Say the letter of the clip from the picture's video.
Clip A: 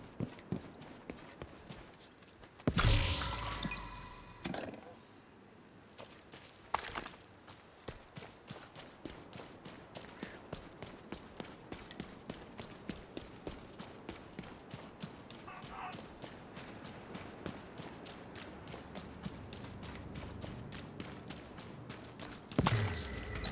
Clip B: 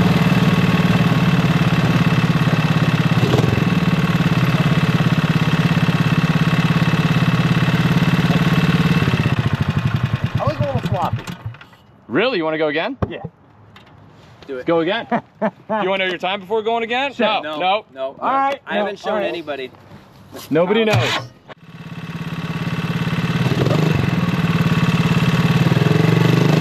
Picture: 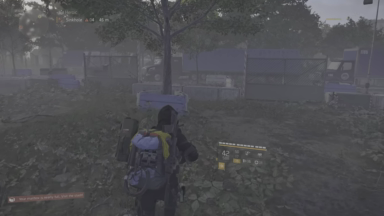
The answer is A